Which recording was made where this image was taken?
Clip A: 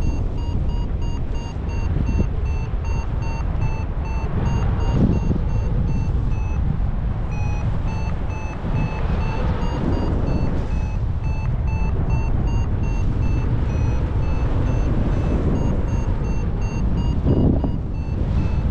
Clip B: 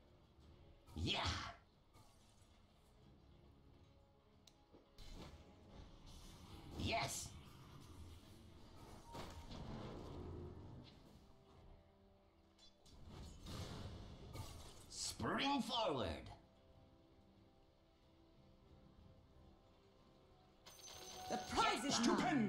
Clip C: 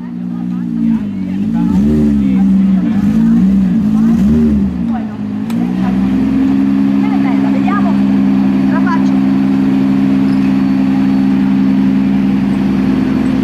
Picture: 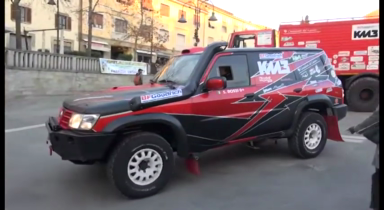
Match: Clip C